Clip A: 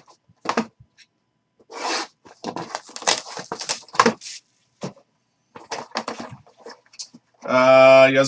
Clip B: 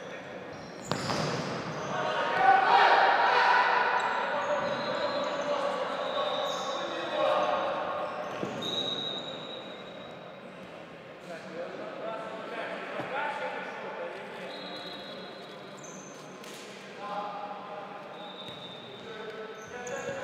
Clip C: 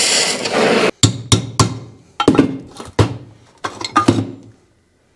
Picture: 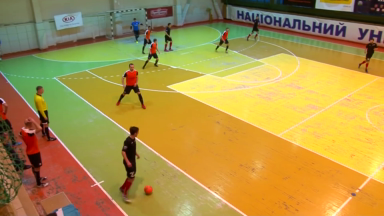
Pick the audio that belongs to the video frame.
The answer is B